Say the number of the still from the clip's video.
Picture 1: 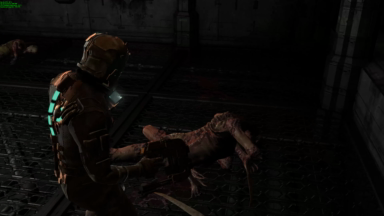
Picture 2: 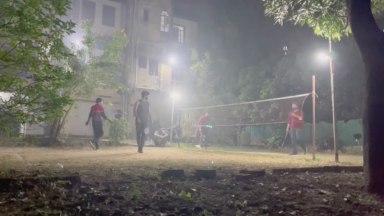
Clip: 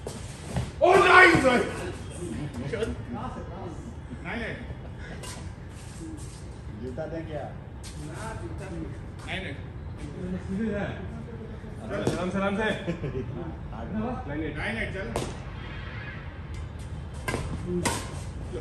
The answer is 2